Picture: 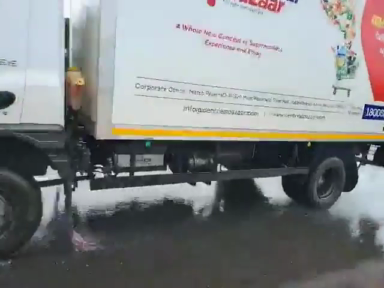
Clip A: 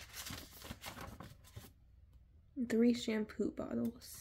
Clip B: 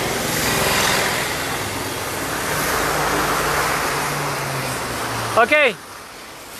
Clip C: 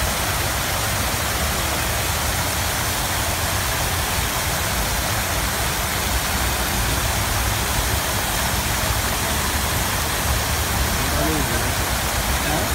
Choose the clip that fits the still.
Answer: B